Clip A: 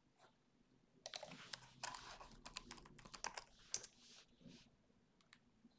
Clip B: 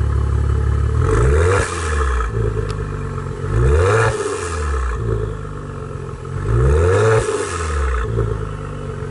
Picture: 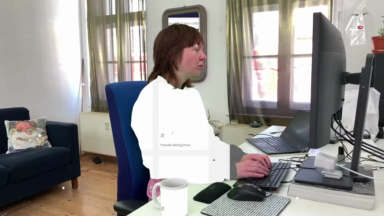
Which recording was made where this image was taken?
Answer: A